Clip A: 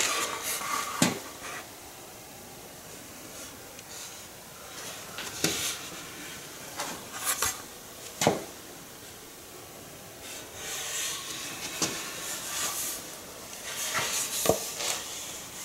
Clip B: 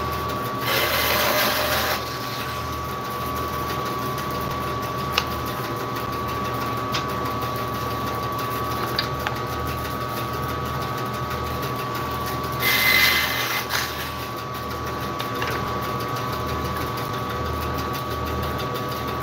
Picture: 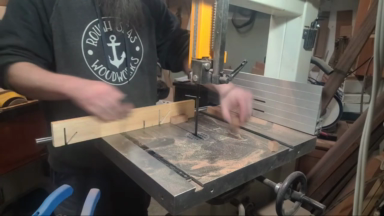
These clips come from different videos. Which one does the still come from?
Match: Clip B